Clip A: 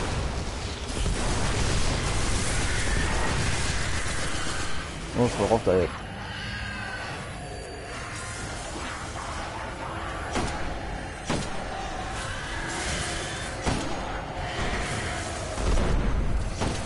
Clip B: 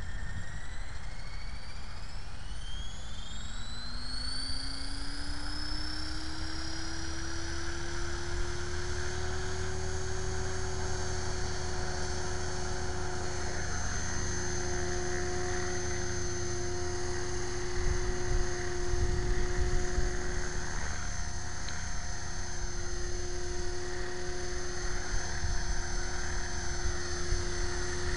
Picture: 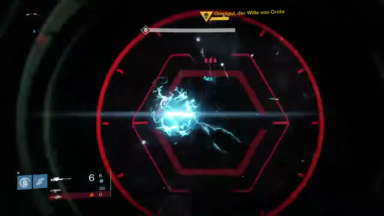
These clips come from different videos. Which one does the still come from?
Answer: A